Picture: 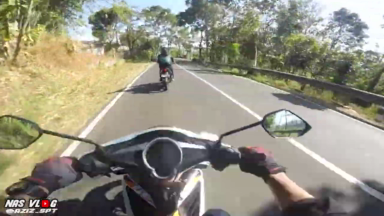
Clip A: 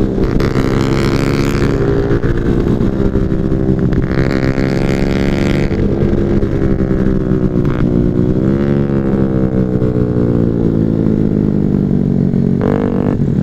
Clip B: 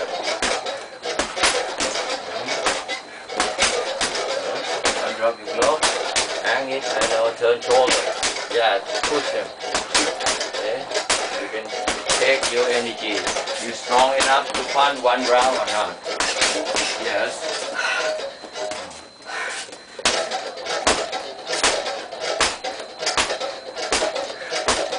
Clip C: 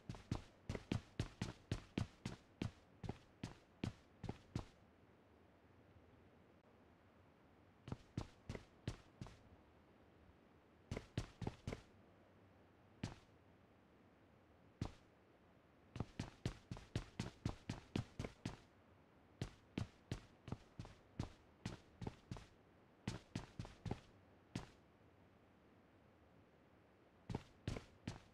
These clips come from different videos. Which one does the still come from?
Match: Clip A